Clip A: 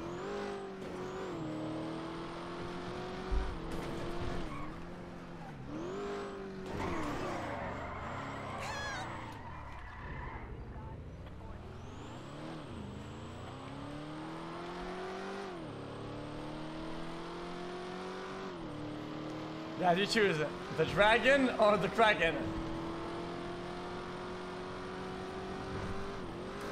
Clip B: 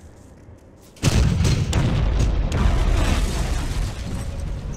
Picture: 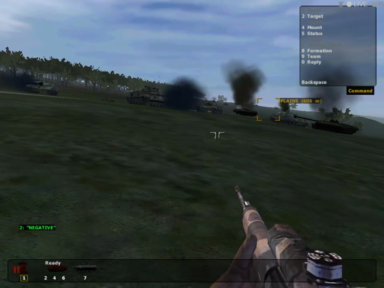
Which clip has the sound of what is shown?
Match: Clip B